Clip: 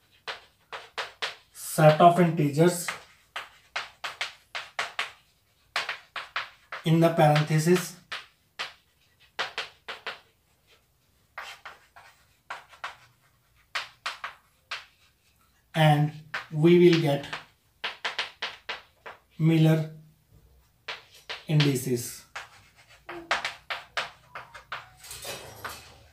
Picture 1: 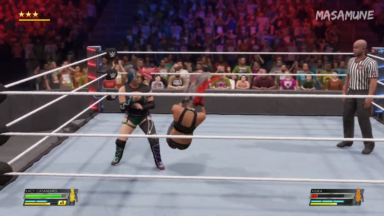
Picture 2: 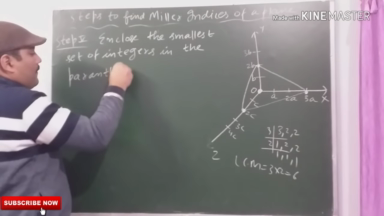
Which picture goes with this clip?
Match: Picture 2